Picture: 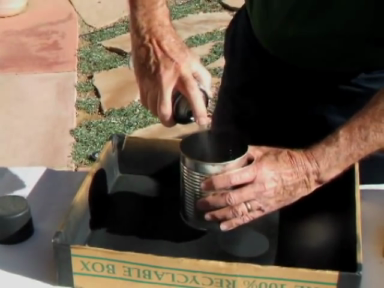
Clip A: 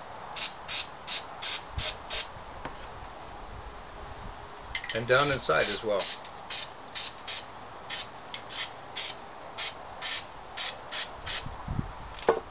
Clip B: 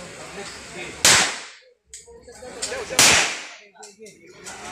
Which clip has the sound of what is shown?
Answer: A